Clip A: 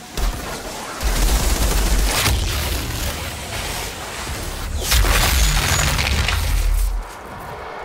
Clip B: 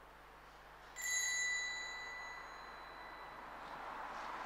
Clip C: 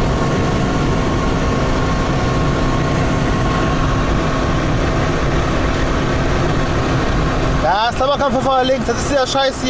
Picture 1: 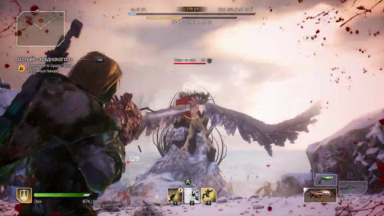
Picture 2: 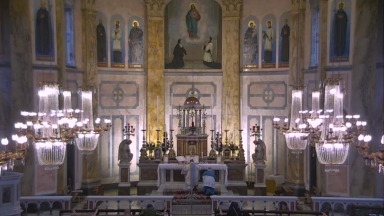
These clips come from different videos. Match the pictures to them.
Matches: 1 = A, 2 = B